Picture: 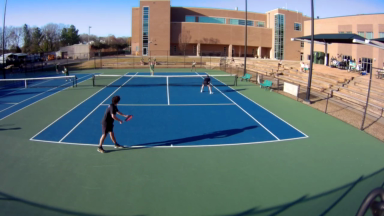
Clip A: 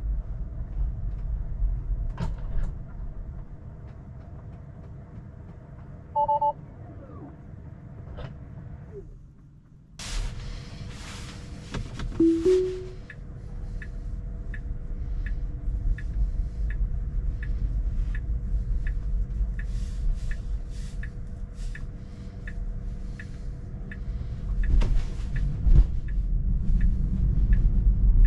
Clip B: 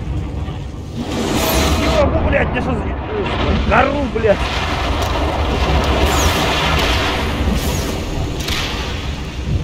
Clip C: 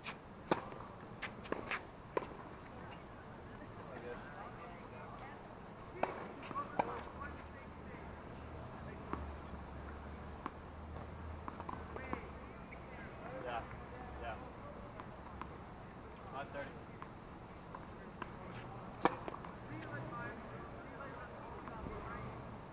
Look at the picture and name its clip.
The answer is C